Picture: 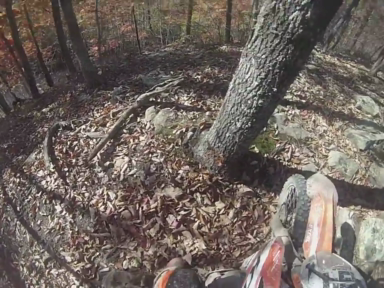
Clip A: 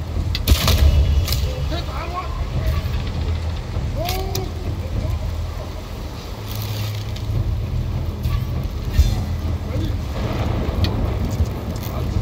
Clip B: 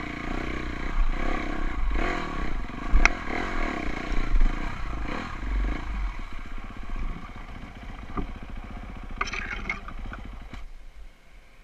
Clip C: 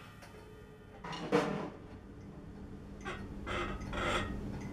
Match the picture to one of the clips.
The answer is B